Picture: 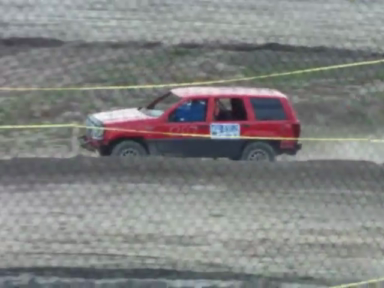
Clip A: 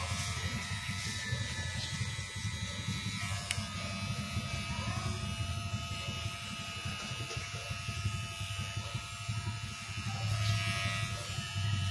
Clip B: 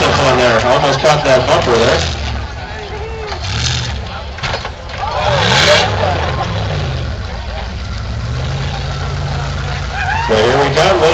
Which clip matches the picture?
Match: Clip B